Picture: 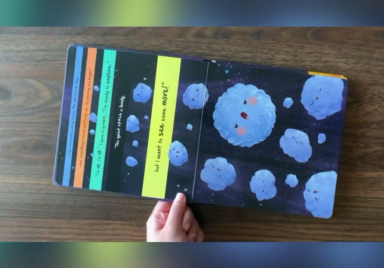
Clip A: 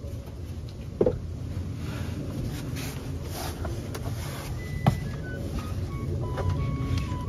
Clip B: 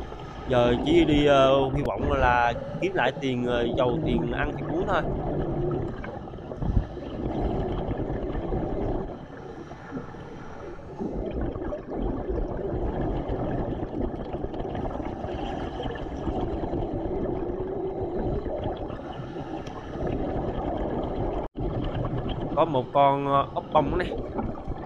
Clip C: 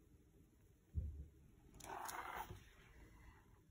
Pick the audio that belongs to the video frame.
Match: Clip C